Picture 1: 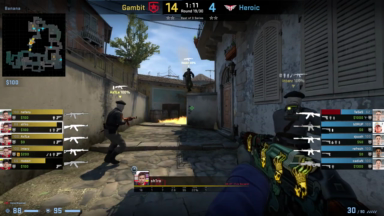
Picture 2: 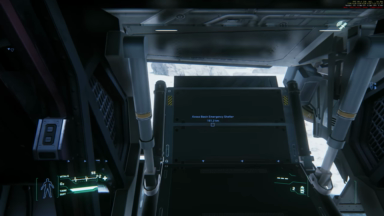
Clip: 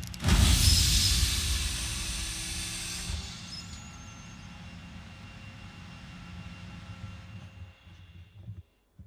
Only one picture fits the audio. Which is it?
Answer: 2